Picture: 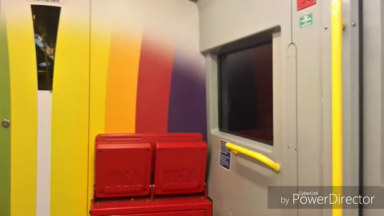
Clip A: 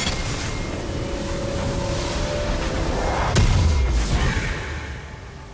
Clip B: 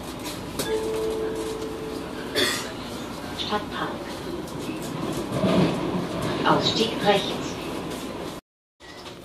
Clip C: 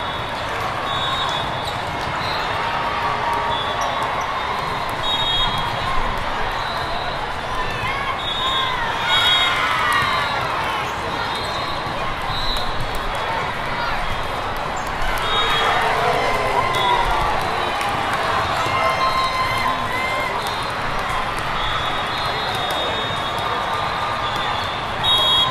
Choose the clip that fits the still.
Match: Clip B